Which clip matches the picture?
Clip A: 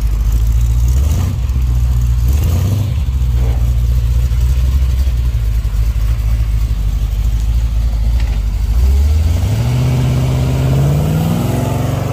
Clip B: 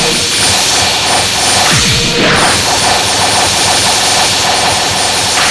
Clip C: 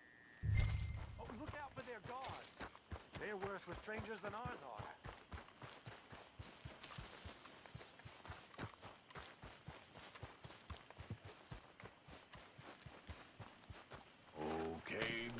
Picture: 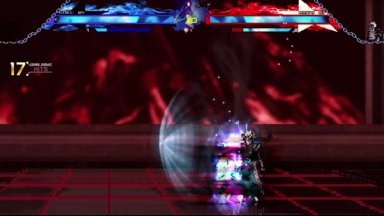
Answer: B